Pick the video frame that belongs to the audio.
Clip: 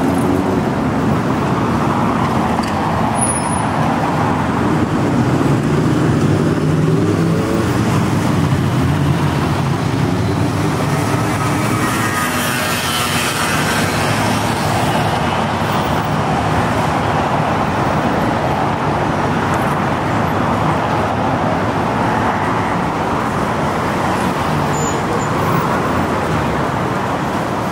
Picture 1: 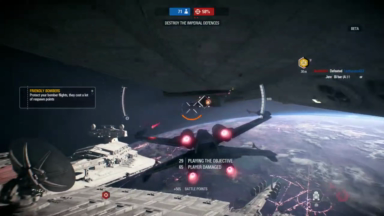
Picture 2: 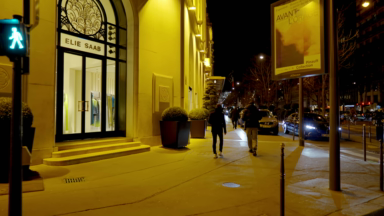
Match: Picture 2